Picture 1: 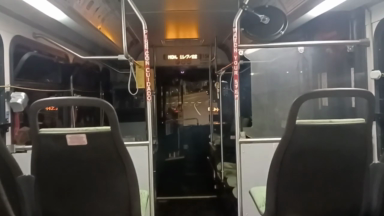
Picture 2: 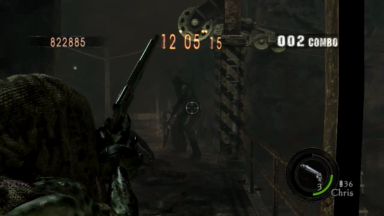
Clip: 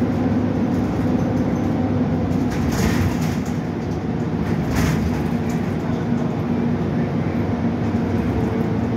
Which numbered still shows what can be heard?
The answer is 1